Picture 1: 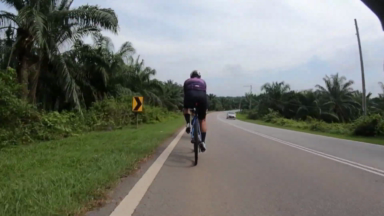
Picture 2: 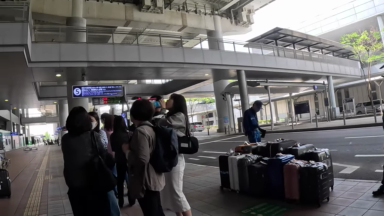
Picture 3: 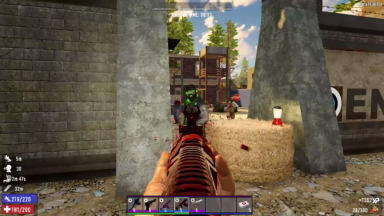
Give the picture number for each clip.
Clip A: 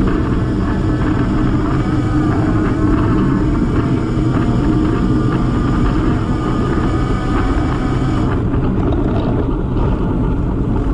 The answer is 1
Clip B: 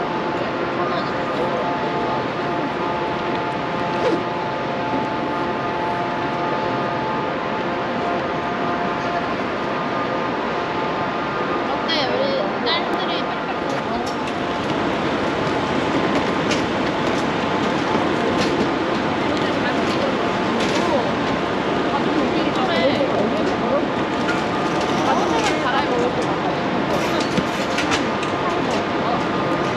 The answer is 2